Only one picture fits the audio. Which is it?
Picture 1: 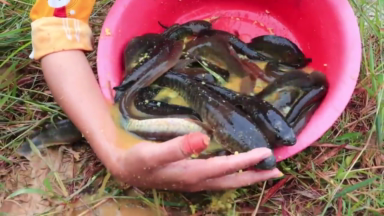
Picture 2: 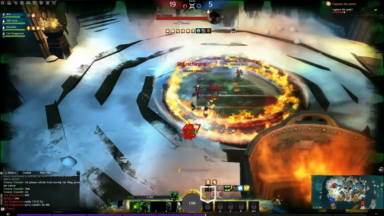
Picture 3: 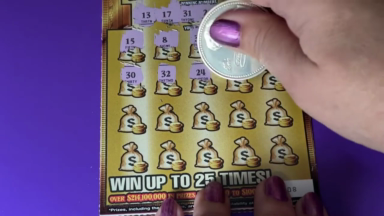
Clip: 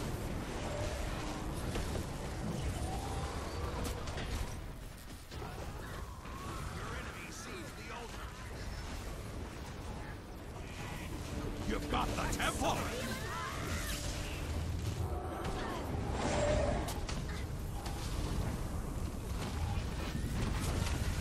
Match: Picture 2